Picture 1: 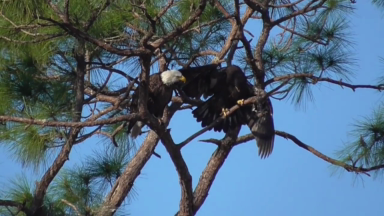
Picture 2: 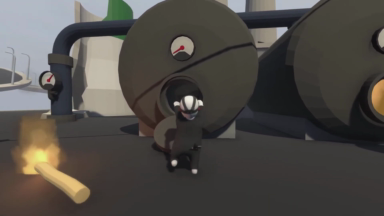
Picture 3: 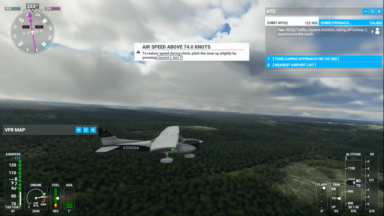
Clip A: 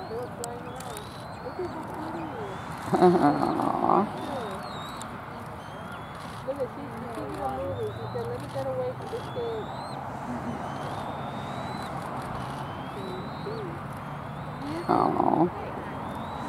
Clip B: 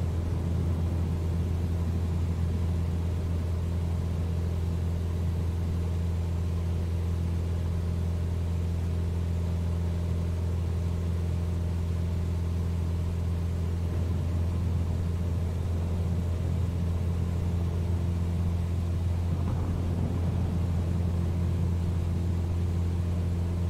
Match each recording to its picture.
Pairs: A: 1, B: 3